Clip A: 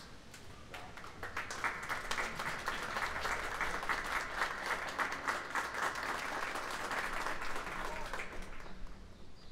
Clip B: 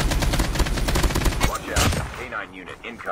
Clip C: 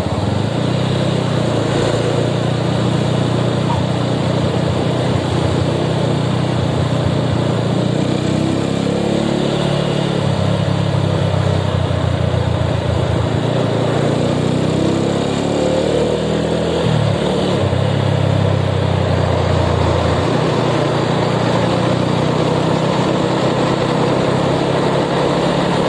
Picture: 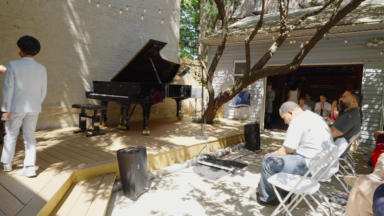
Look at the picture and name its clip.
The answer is A